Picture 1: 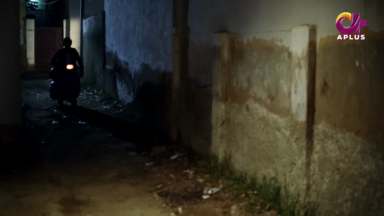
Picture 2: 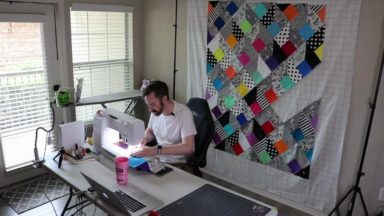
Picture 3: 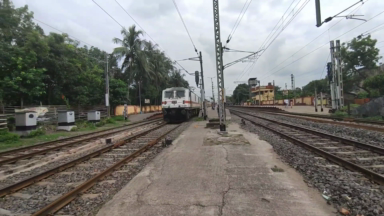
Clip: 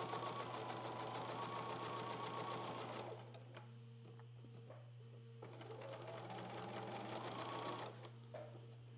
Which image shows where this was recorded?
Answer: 2